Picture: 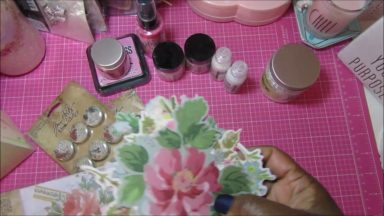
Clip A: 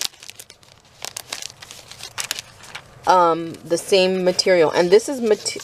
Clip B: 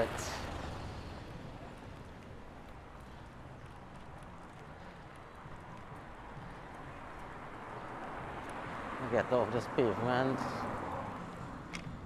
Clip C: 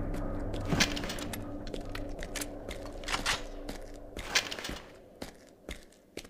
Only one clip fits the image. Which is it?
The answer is A